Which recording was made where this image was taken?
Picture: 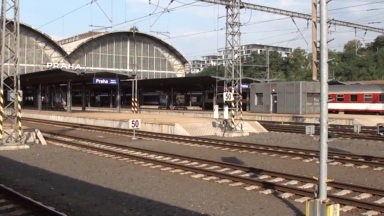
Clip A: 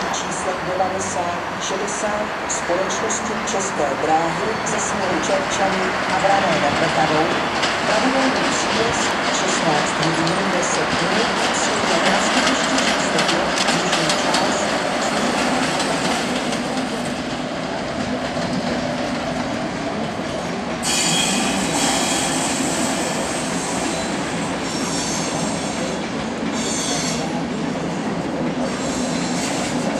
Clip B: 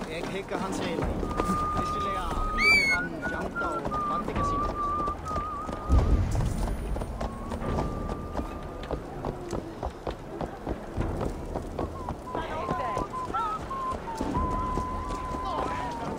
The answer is A